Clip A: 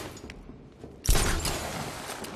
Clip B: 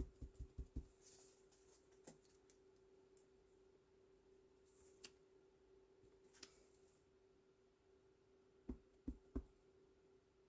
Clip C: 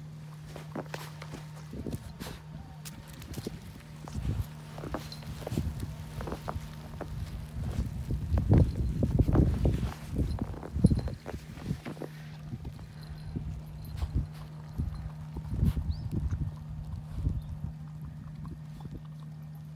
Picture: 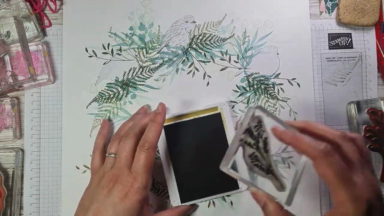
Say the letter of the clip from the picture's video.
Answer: B